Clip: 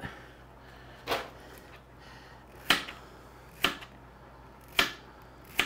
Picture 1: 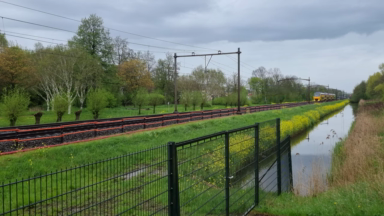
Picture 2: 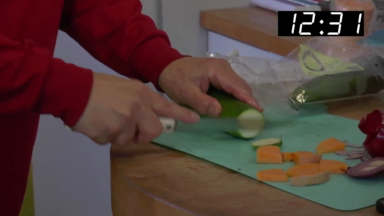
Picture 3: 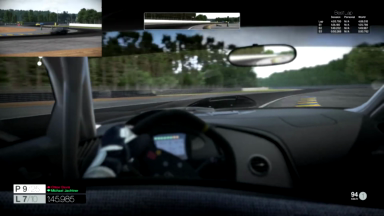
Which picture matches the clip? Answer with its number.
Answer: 2